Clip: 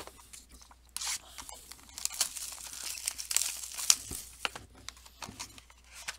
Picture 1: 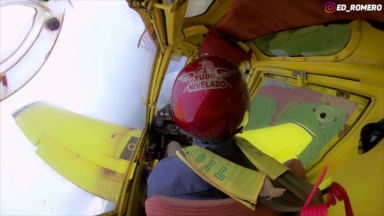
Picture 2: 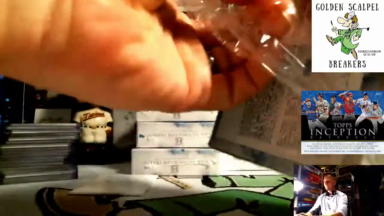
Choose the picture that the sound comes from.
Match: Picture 2